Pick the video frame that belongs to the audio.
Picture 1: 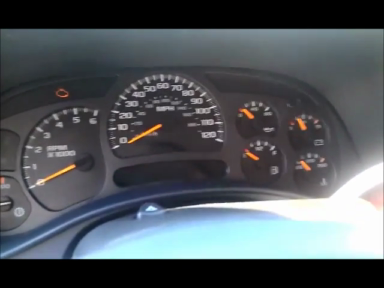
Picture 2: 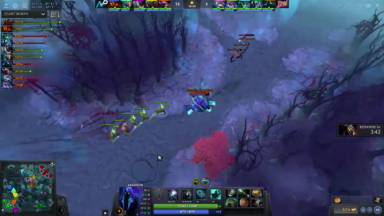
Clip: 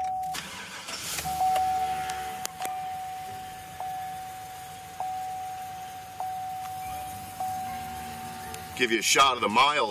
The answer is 1